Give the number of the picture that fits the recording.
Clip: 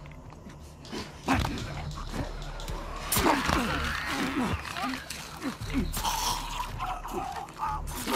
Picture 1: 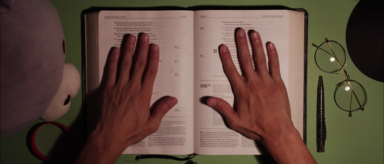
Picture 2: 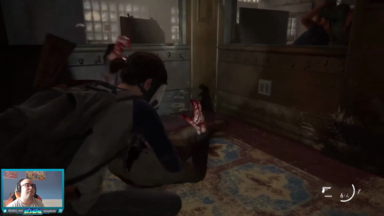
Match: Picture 2